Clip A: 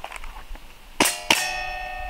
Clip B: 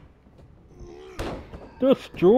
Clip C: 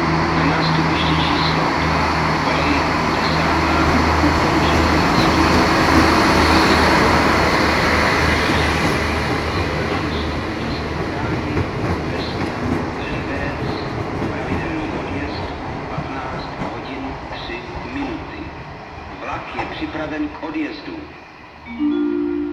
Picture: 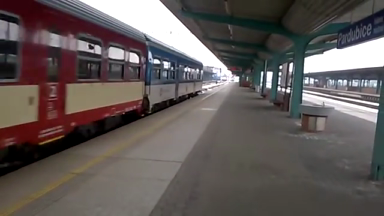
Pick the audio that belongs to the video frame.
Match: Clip C